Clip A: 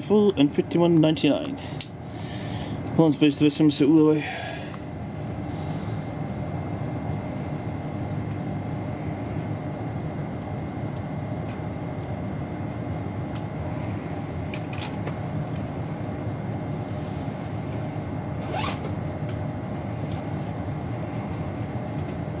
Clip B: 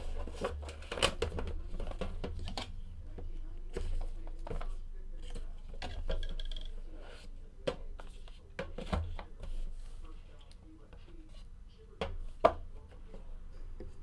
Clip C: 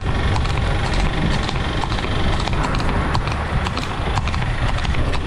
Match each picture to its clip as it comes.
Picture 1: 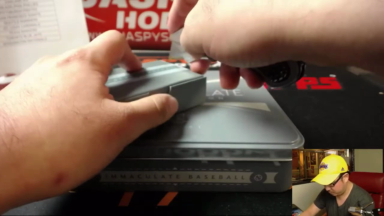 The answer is B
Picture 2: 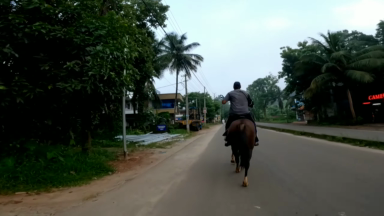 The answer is C